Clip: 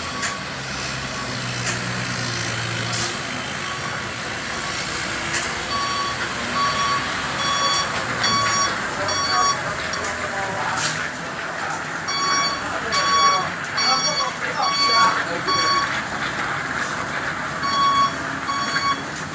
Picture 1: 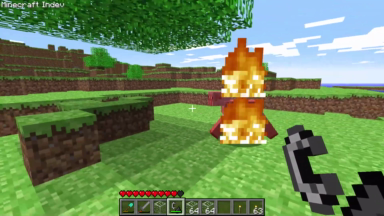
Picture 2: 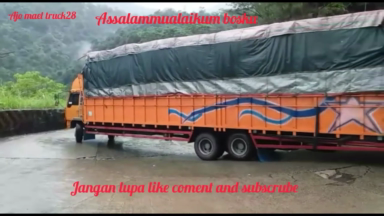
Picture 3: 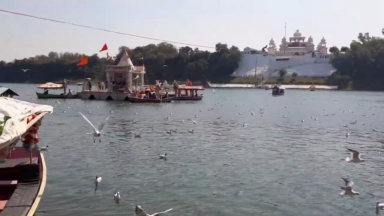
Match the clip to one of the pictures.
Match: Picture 2